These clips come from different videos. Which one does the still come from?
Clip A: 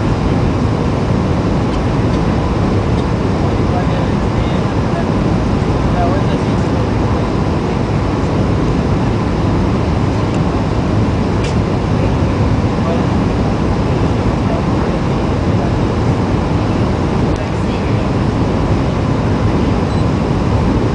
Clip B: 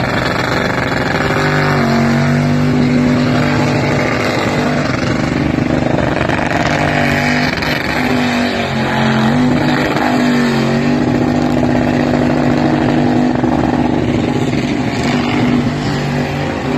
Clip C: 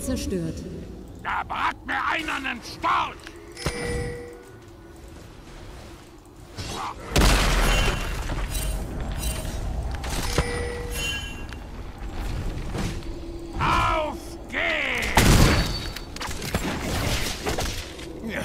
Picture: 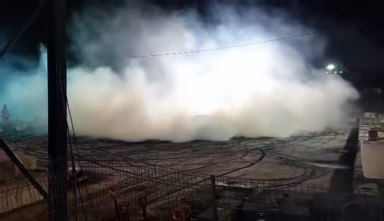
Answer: B